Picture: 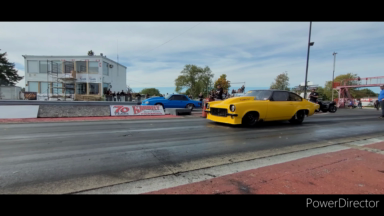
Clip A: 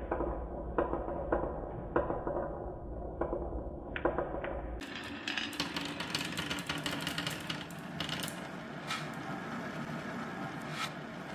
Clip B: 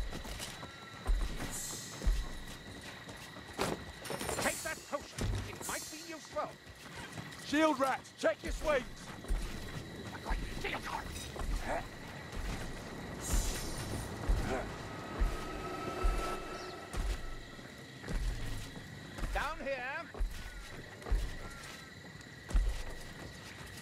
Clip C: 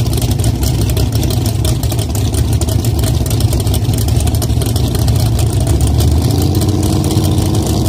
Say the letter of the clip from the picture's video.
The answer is C